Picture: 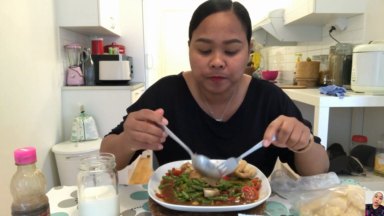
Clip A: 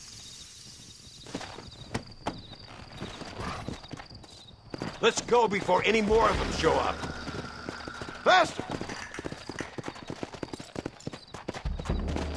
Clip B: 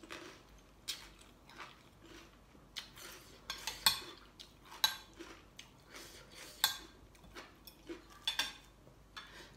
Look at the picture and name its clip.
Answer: B